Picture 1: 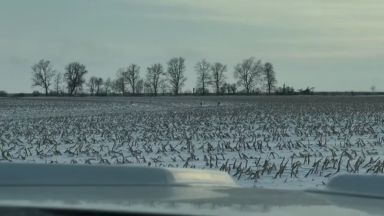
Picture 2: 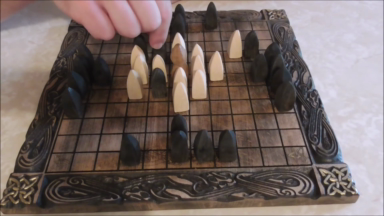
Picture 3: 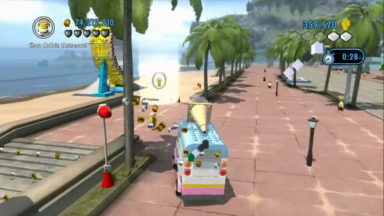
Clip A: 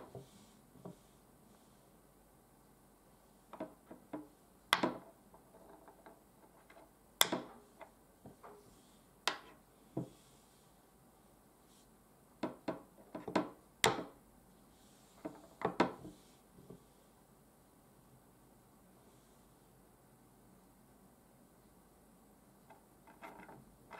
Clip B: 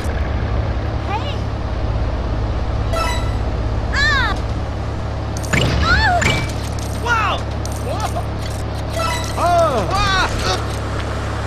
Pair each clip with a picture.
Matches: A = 2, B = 3